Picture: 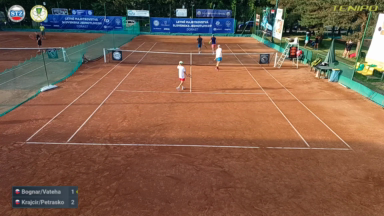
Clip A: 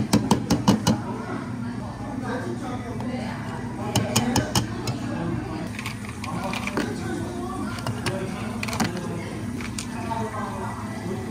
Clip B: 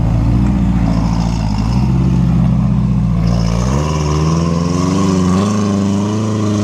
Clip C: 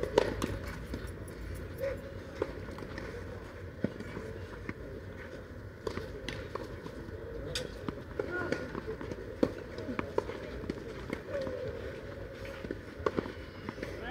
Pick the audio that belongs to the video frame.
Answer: C